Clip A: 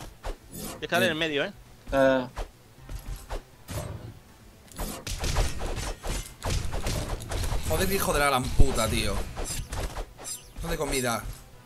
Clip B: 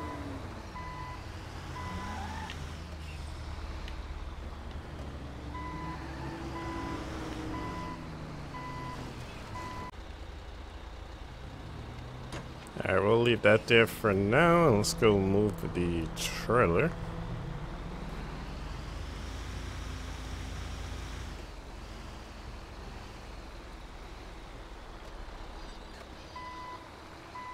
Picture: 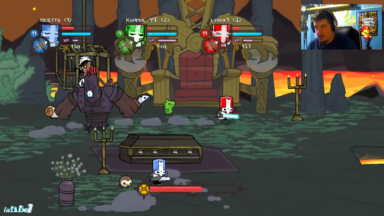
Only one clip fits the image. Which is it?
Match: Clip A